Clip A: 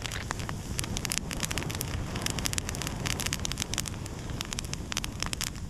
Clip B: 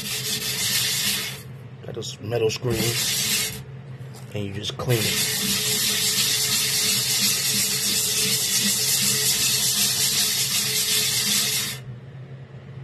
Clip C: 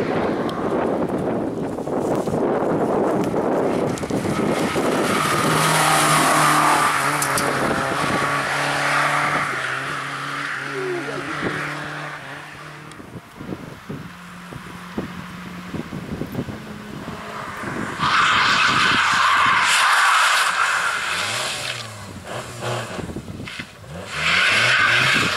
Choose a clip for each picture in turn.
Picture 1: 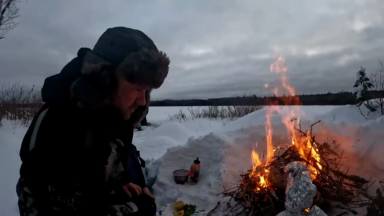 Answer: A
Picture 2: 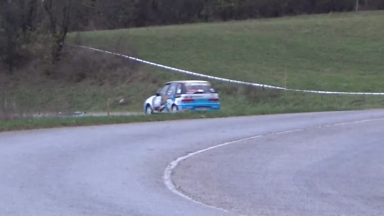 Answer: C